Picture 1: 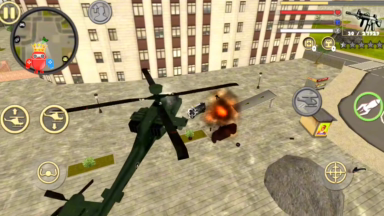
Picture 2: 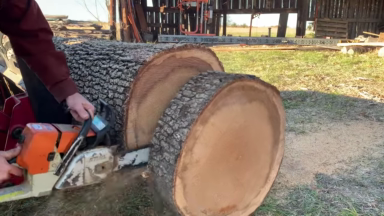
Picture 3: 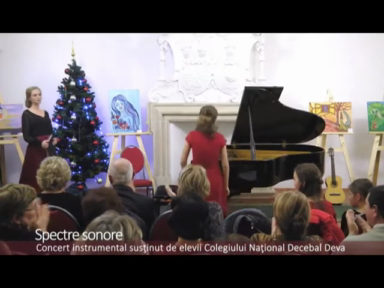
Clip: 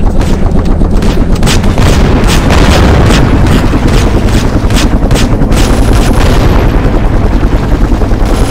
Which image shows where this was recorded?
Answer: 1